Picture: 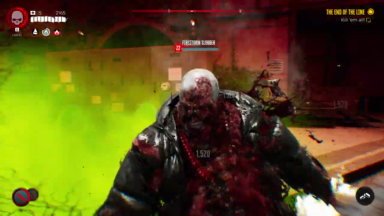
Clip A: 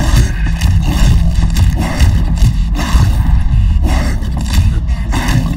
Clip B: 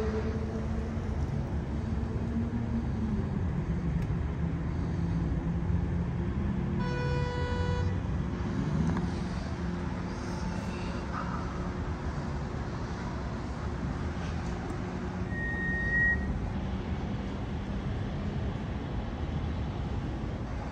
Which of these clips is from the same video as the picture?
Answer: A